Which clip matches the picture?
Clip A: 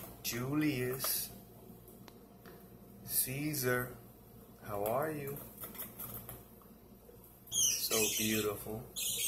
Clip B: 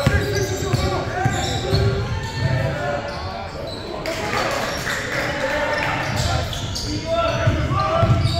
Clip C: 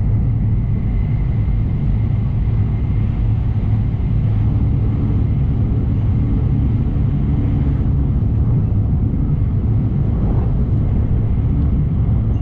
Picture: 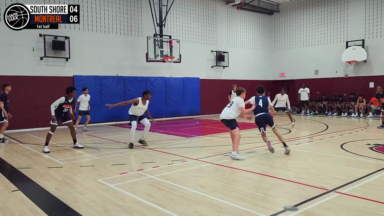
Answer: B